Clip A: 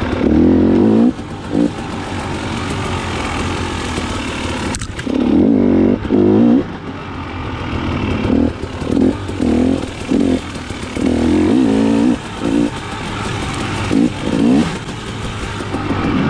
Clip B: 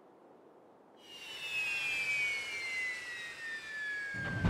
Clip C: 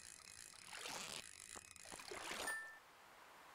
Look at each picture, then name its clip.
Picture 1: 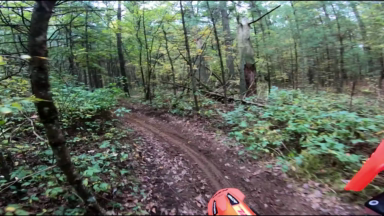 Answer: A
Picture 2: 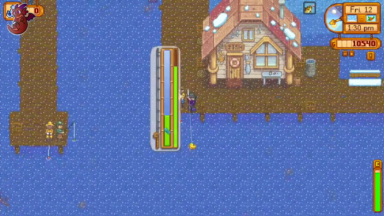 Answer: C